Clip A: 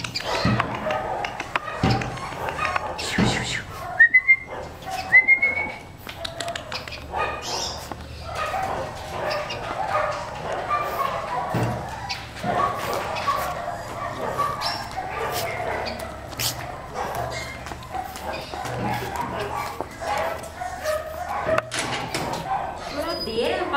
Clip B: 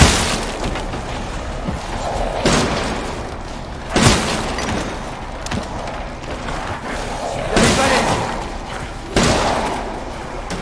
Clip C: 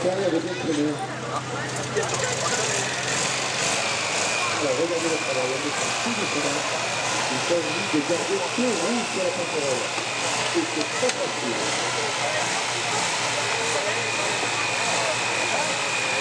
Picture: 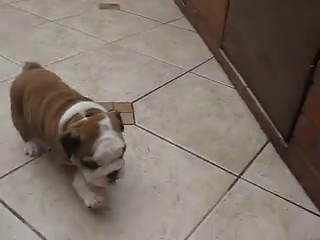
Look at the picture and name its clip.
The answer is A